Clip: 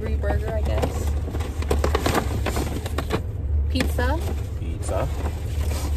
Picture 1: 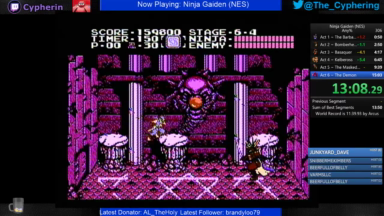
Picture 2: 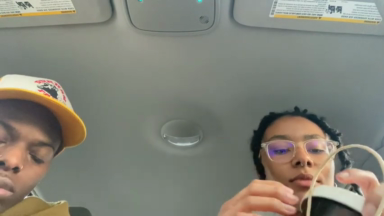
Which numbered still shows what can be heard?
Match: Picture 2